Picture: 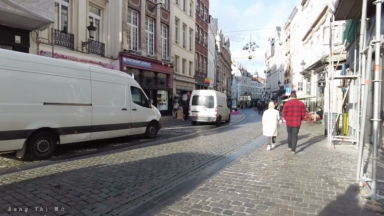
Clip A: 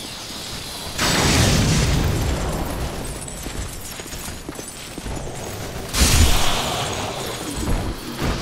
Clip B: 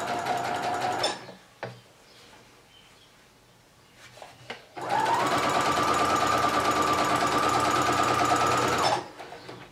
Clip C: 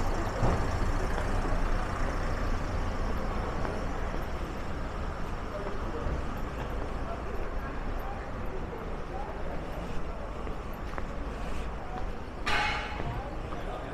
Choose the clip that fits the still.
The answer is C